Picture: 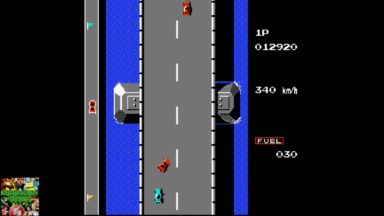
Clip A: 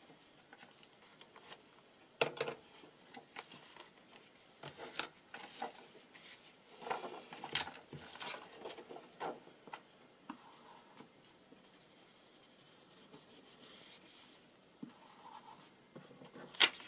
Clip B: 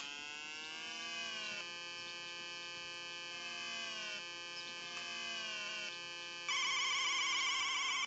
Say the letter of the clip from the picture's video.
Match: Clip B